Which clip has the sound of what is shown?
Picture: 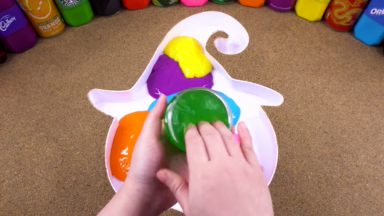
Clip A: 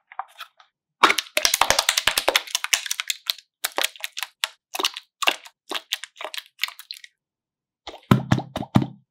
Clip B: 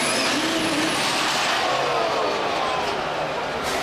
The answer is A